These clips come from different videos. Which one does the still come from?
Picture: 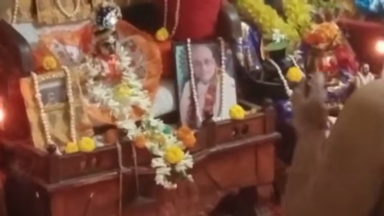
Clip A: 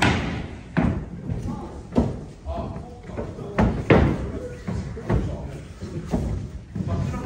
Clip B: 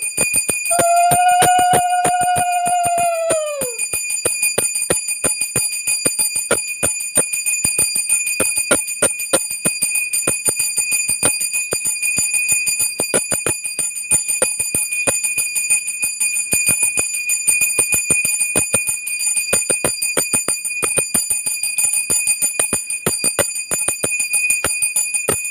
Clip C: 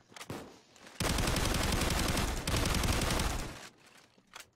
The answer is B